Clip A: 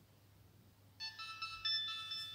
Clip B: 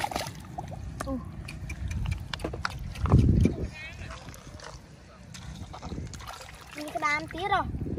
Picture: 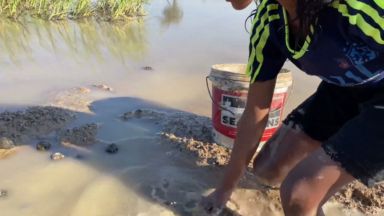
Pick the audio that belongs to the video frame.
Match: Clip B